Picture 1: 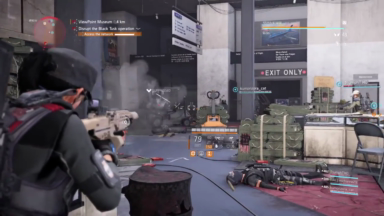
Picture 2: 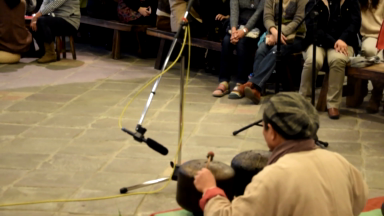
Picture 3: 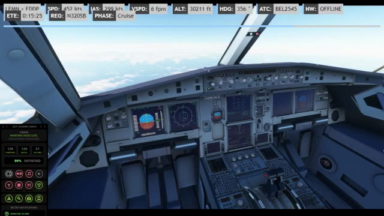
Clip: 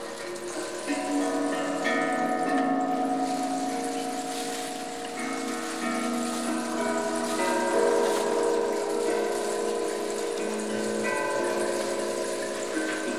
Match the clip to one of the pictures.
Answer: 2